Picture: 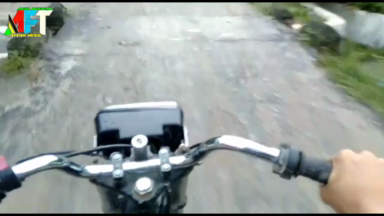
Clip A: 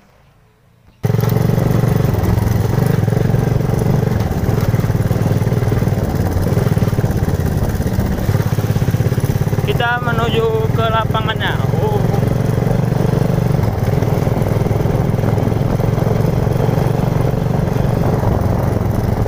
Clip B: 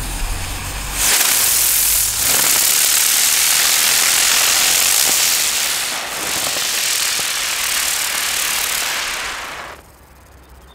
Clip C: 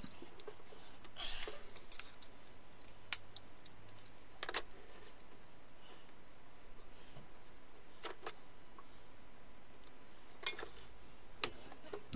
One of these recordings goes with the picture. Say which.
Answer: A